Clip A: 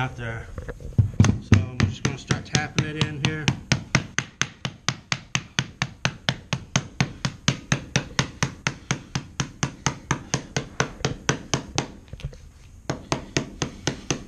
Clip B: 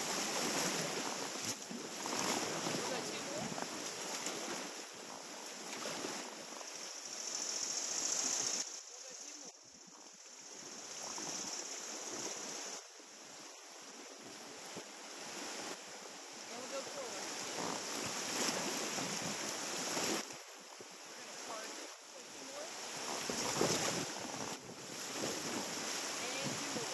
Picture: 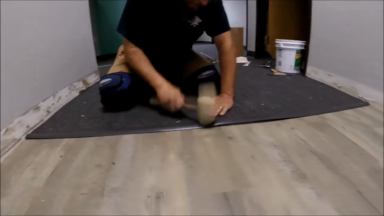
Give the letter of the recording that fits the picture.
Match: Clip A